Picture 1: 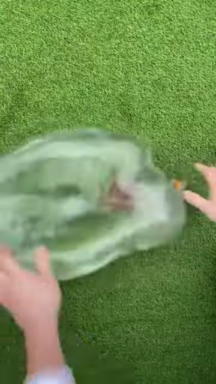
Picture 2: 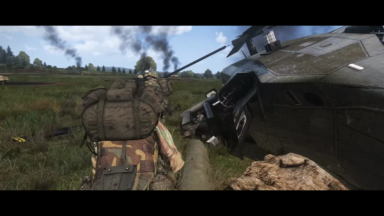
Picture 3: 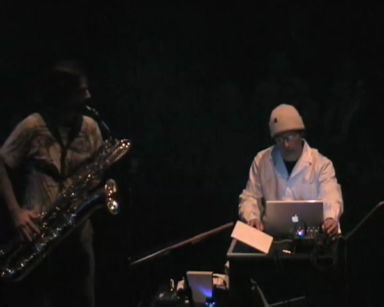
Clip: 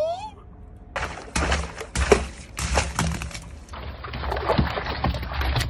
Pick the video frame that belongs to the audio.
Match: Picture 1